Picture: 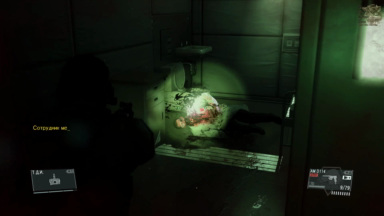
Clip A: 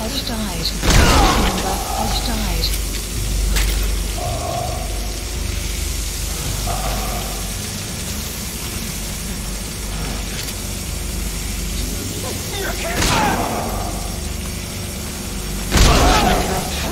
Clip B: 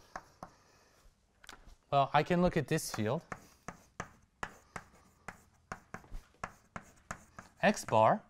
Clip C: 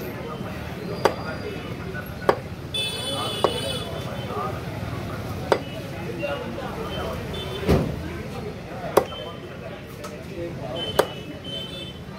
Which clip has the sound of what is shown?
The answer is A